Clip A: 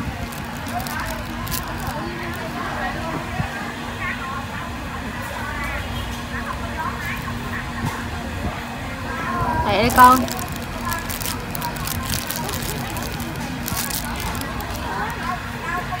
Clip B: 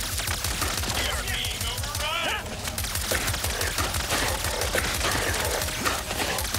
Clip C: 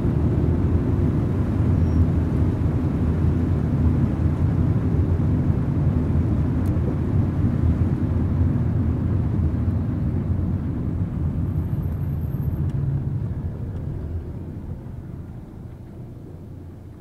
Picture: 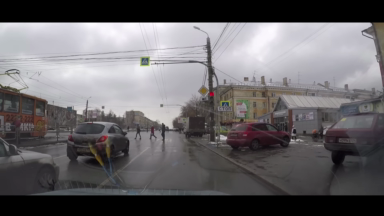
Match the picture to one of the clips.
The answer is C